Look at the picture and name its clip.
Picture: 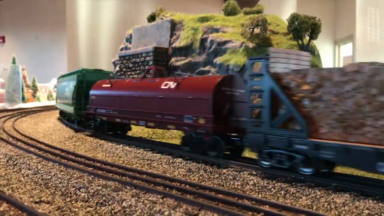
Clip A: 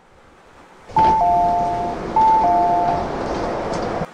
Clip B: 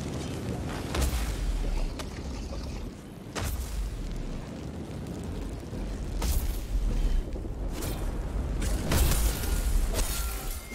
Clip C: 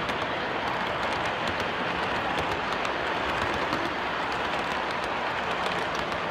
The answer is C